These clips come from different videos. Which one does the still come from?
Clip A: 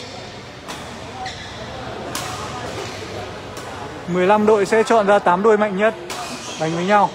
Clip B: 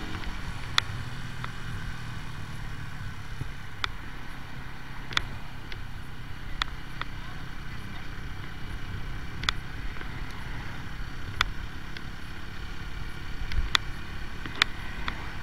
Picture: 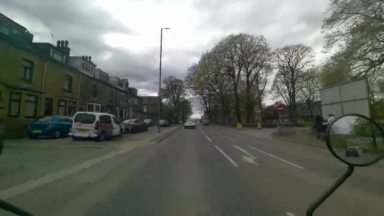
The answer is B